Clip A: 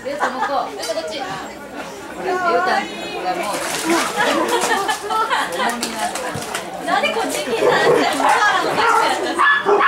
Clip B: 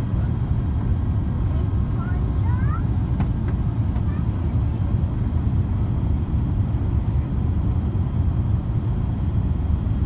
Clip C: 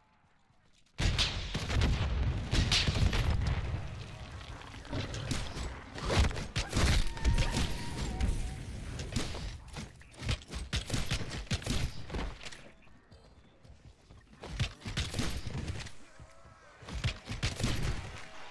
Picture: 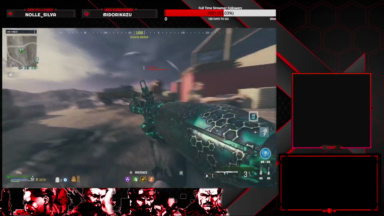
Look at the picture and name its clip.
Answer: C